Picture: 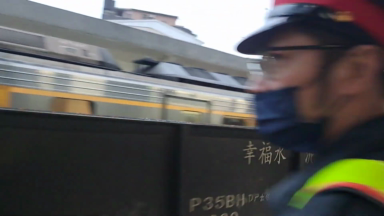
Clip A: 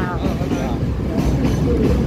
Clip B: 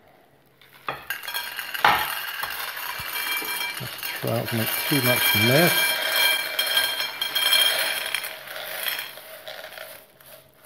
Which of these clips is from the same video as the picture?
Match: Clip A